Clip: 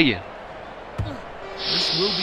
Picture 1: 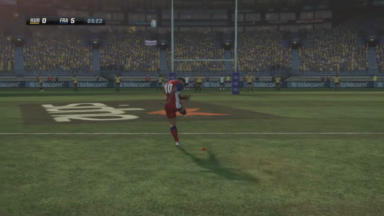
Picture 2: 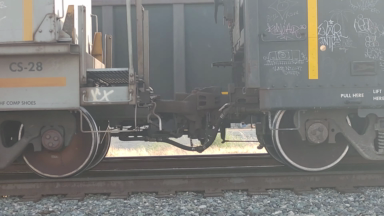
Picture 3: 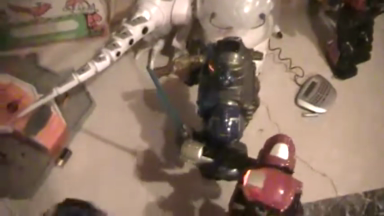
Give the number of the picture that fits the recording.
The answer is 1